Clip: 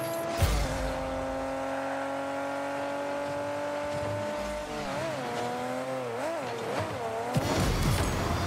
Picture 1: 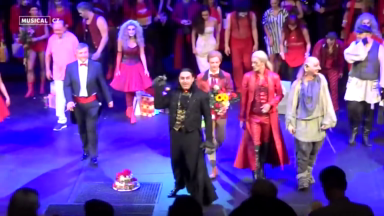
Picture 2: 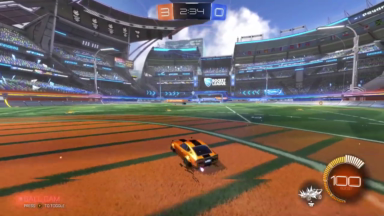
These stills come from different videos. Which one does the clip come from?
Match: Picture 2